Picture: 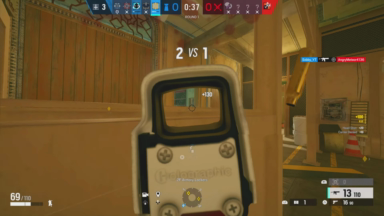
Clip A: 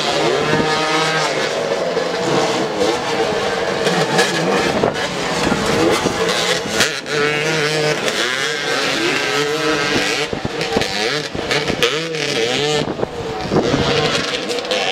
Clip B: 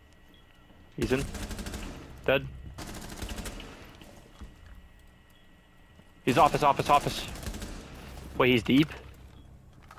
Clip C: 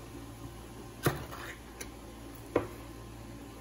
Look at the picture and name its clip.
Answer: B